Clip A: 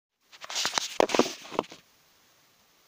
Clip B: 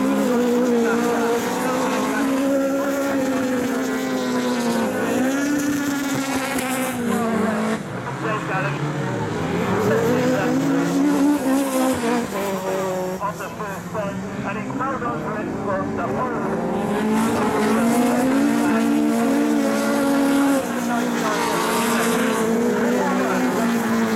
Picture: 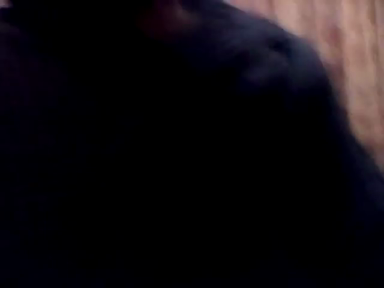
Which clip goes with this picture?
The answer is A